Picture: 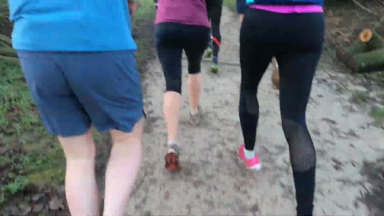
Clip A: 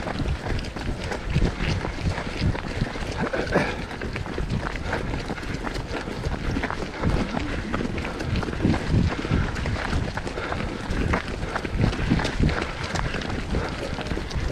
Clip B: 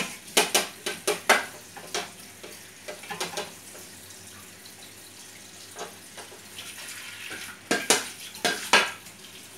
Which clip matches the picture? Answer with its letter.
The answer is A